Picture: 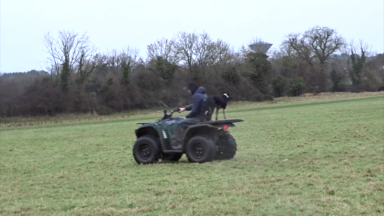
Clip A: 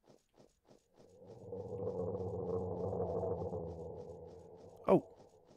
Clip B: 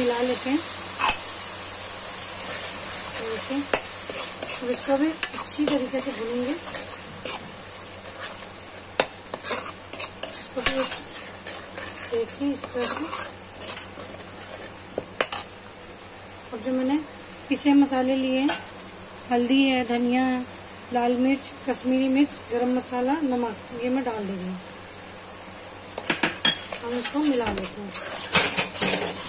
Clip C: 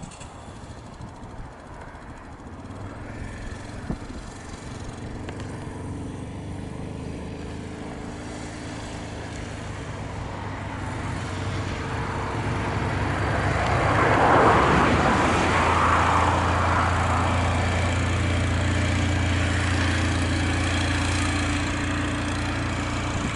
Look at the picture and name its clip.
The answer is C